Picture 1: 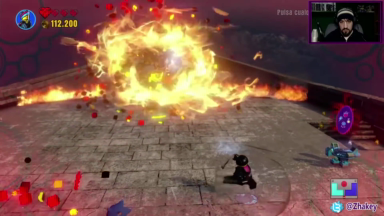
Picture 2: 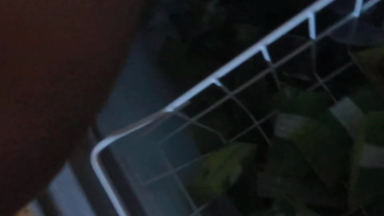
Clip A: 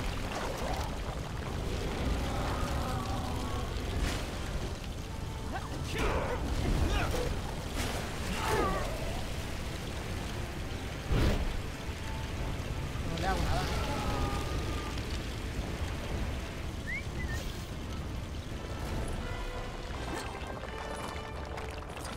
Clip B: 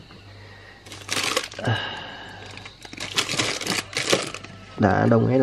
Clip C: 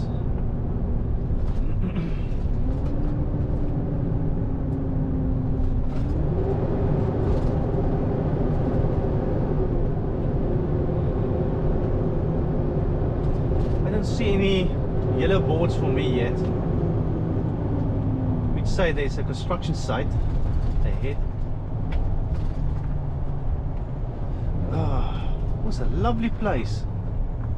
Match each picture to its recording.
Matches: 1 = A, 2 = B